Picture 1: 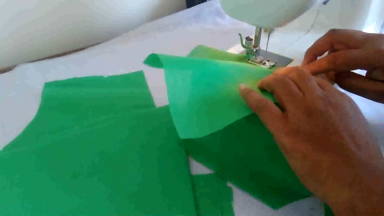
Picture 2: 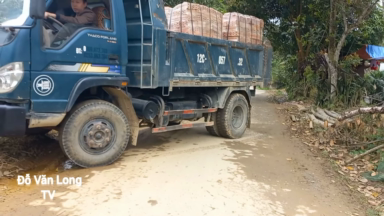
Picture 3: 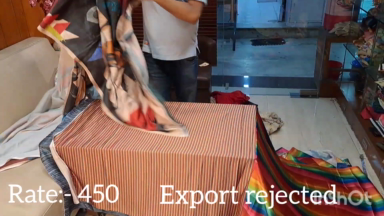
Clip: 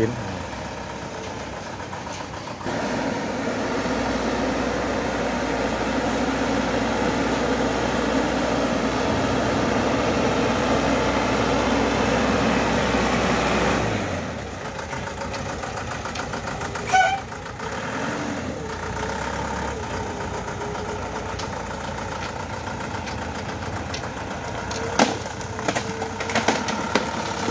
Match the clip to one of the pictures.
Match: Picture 2